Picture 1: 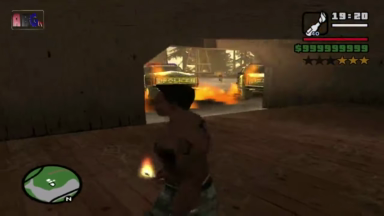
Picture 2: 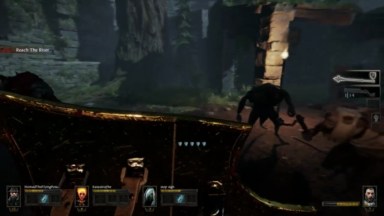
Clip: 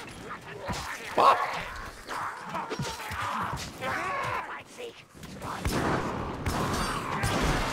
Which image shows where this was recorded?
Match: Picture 2